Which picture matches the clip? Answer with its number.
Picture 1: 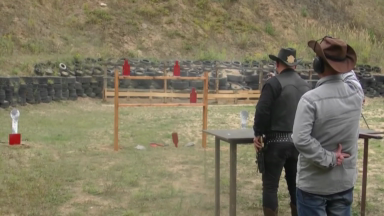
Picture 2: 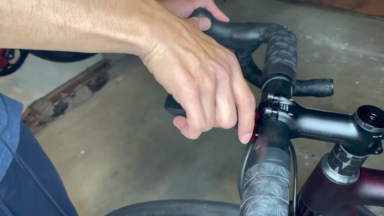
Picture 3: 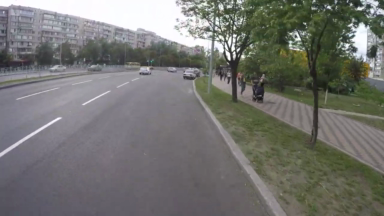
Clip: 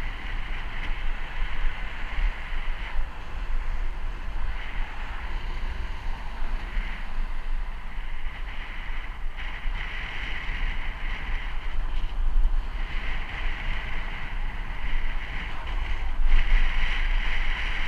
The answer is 3